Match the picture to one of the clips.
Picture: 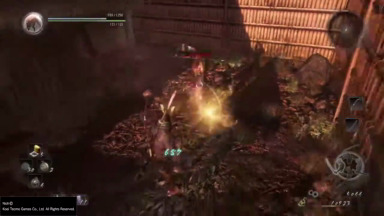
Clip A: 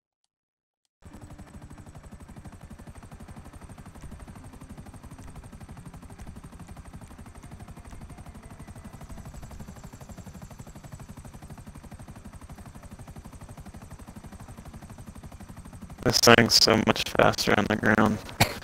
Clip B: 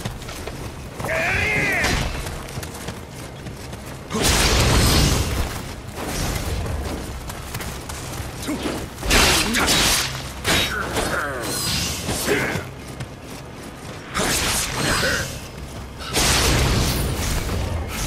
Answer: B